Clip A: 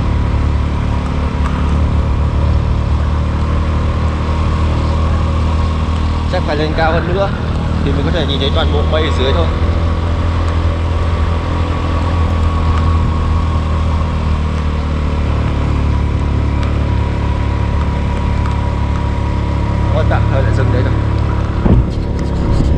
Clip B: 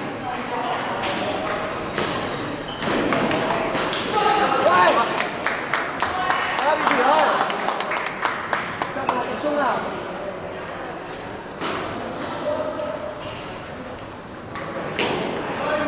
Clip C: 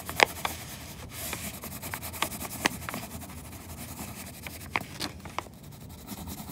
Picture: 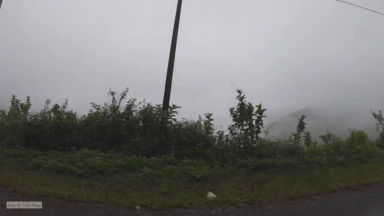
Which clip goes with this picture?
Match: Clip A